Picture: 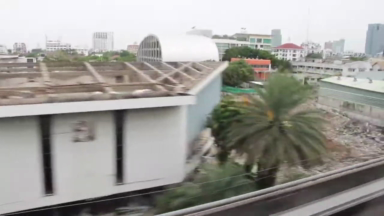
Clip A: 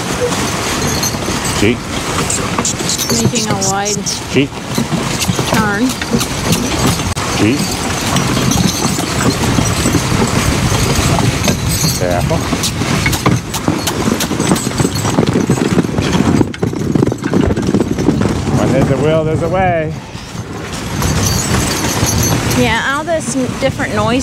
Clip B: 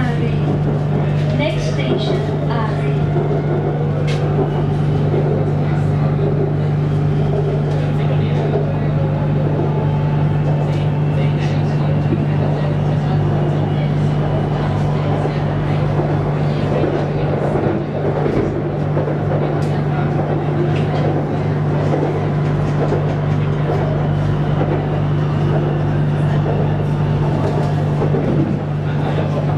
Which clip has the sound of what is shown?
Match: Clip B